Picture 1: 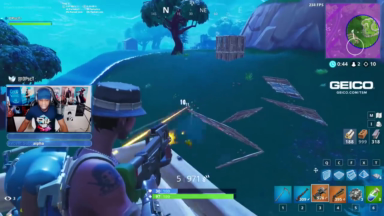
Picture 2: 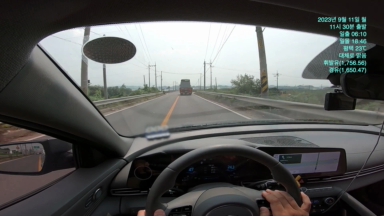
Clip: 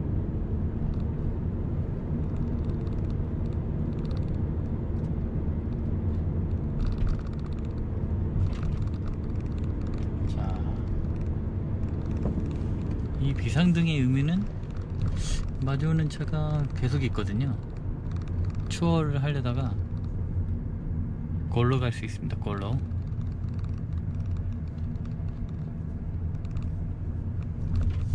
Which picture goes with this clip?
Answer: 2